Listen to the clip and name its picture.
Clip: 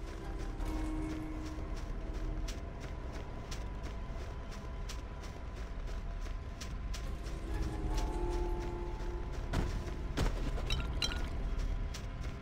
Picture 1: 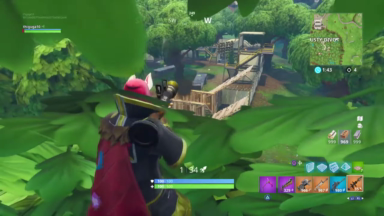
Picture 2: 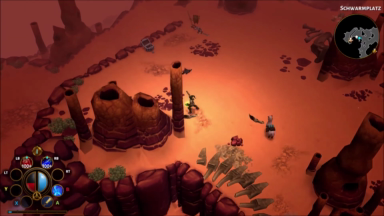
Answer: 2